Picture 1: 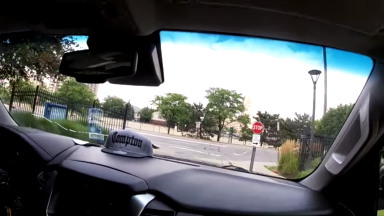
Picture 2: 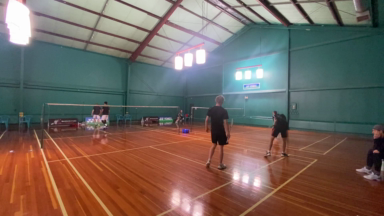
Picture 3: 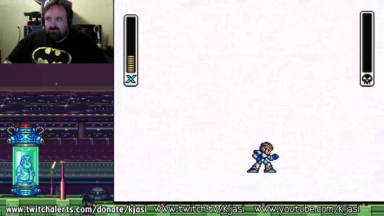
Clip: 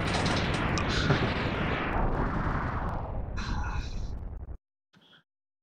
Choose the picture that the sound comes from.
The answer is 3